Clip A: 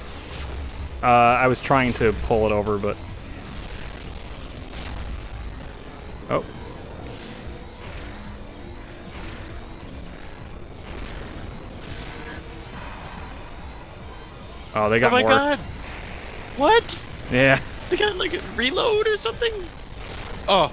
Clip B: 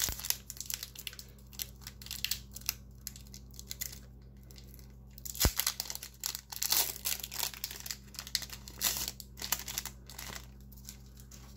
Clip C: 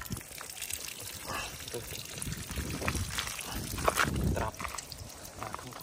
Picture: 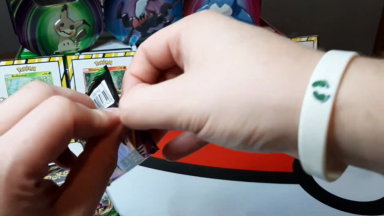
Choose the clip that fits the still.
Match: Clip B